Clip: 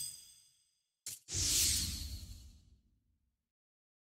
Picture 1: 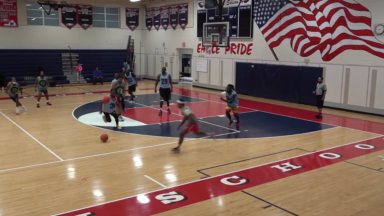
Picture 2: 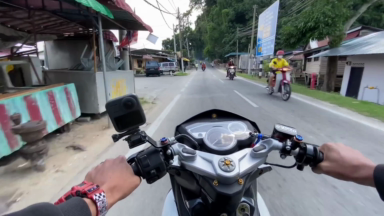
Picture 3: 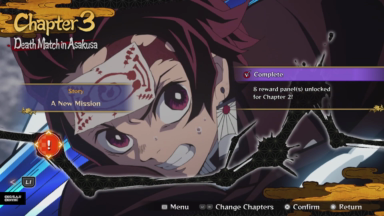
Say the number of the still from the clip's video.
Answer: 3